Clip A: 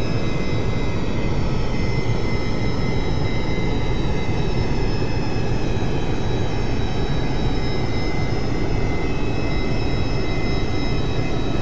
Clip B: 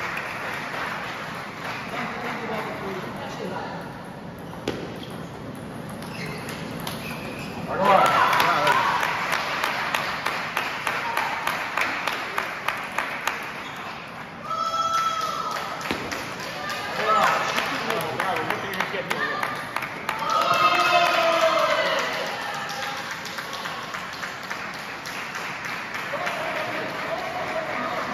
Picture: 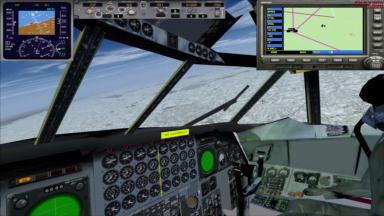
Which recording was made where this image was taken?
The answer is A